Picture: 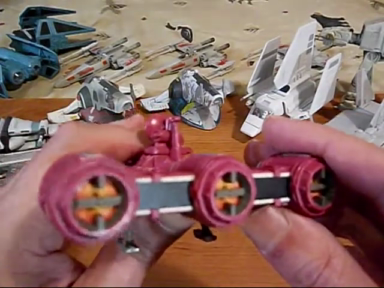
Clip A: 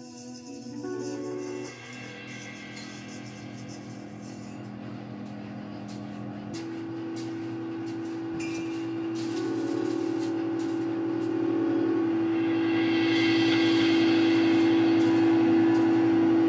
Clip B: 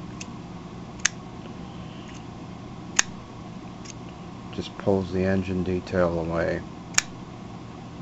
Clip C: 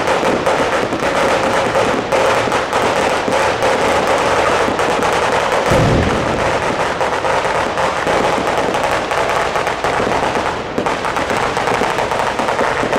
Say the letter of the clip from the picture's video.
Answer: B